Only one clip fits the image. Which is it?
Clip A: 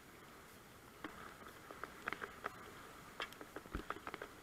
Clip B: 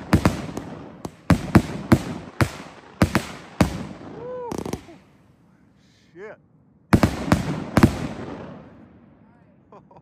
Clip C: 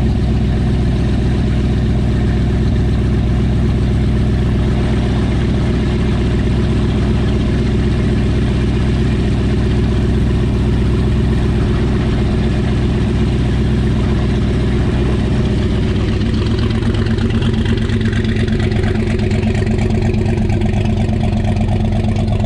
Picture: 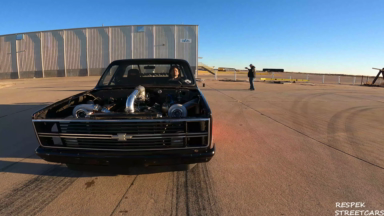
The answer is C